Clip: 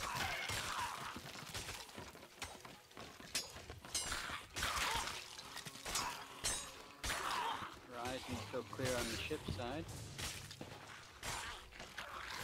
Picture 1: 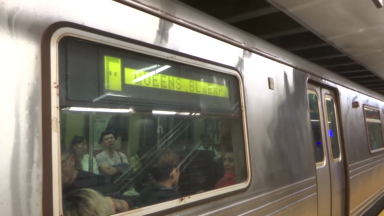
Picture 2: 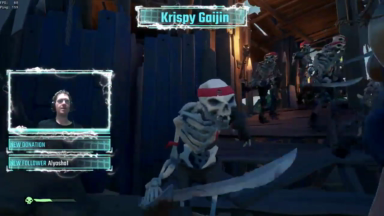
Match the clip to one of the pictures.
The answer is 2